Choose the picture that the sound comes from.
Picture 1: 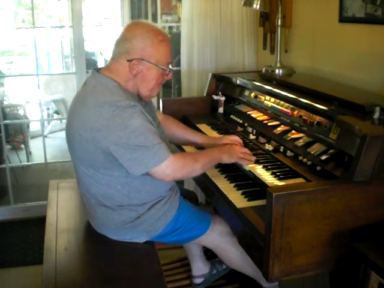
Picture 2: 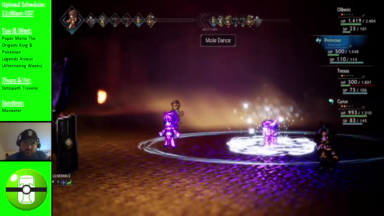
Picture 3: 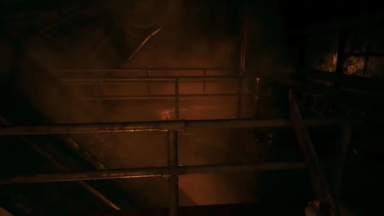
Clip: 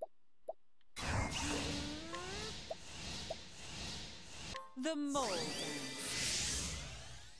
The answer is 2